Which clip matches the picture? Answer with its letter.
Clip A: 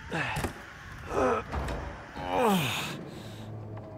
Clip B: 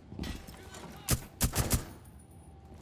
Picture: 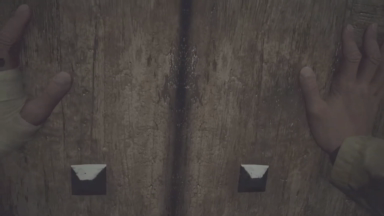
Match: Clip A